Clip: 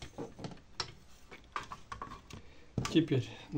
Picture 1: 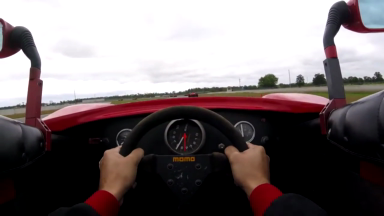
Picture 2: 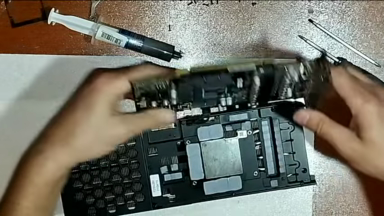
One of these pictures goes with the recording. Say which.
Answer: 2